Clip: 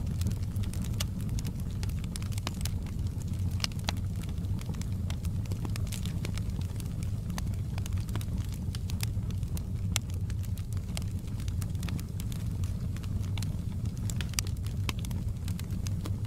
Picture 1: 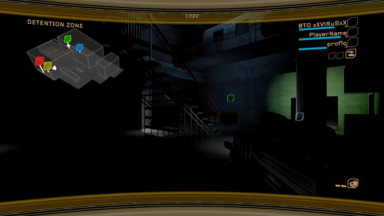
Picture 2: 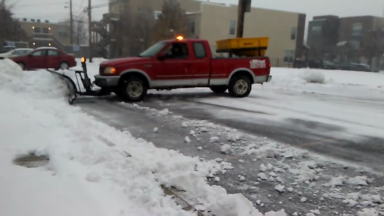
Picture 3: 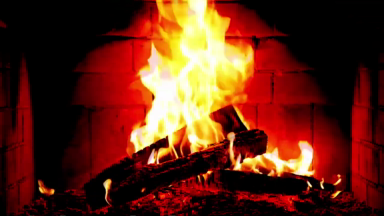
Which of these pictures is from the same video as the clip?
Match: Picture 3